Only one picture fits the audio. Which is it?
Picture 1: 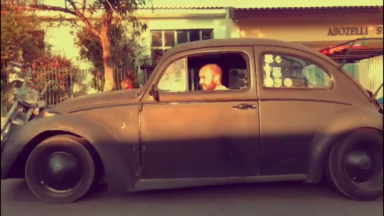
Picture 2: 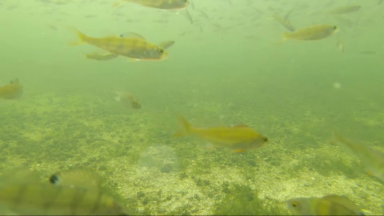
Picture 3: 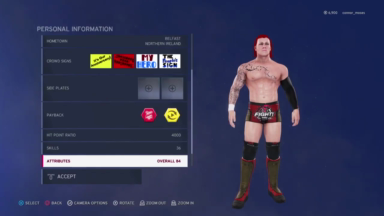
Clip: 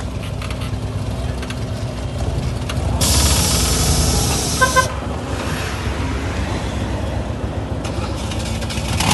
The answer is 1